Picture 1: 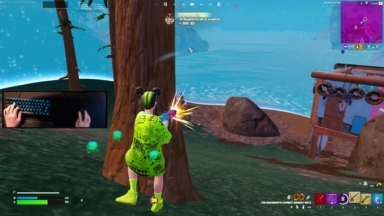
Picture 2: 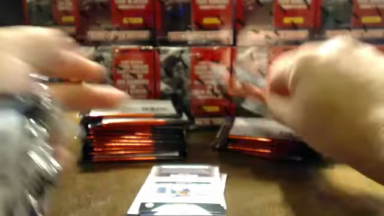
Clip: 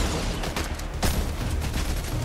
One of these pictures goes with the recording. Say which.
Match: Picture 1